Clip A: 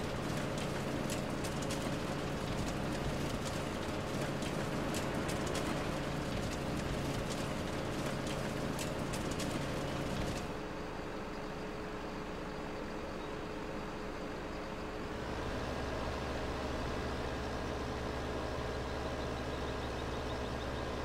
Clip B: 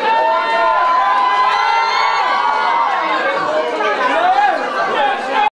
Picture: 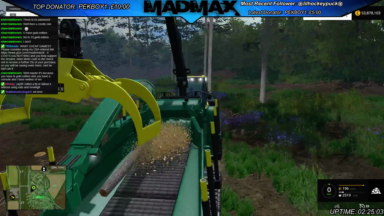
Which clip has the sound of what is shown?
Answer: A